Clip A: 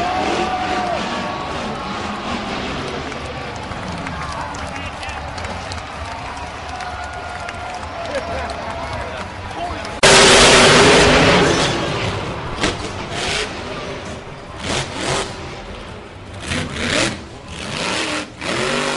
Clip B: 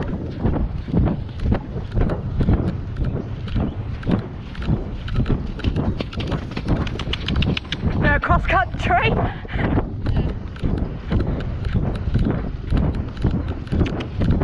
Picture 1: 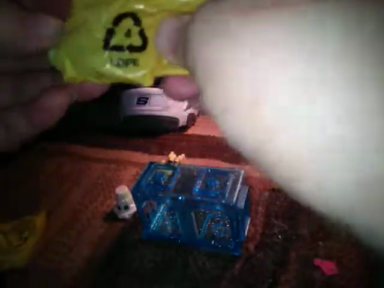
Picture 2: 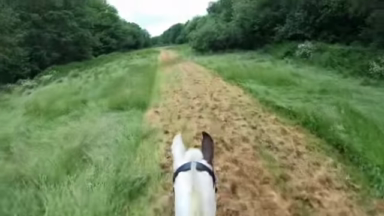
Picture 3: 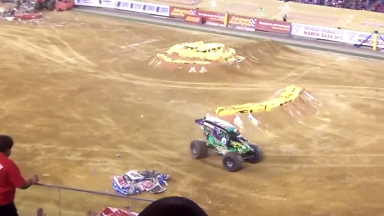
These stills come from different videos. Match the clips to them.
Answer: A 3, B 2